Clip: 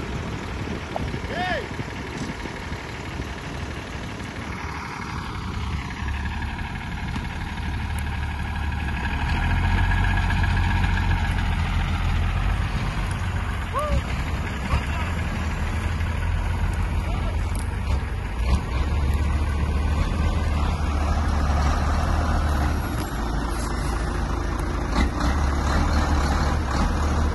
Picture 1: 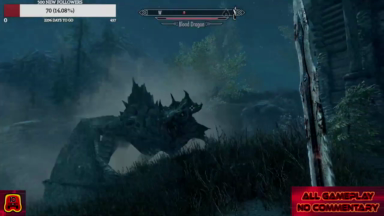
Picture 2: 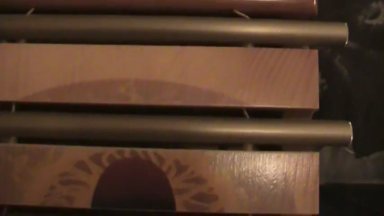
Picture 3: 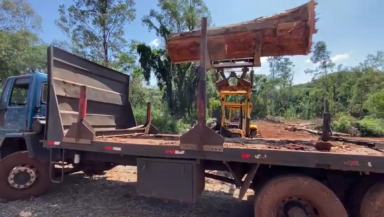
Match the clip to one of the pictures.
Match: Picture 3